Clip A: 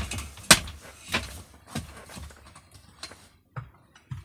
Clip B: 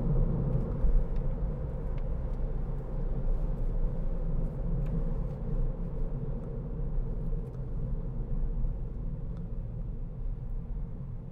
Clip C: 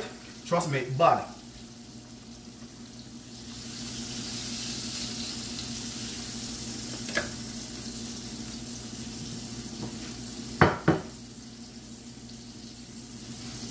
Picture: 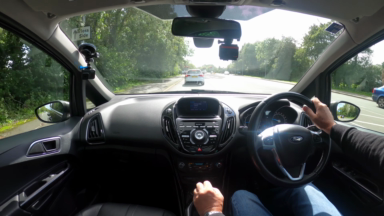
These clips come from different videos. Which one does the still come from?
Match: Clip B